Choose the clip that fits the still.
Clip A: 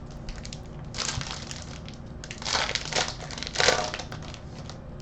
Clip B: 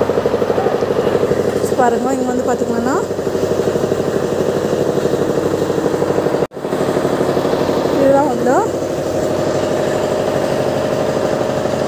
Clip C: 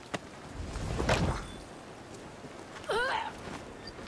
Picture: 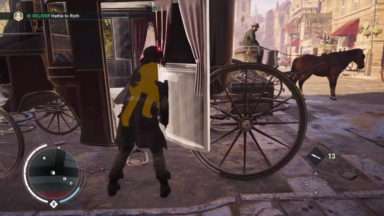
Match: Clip C